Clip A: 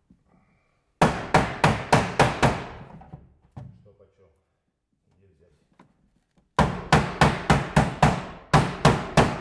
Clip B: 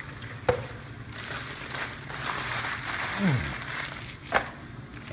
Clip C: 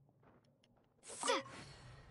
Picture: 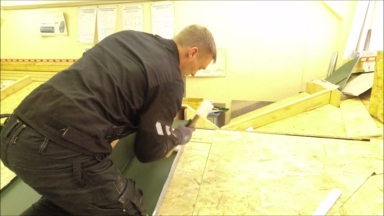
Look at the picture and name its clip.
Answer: A